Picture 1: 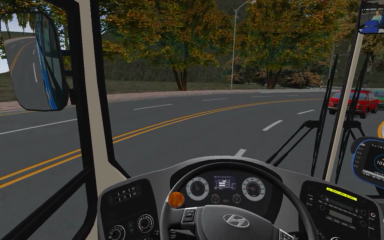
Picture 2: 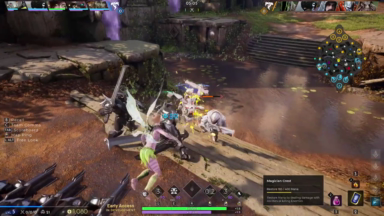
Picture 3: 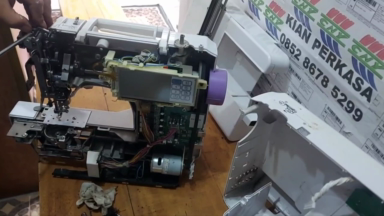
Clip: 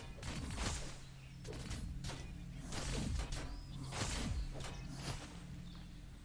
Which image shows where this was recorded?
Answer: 2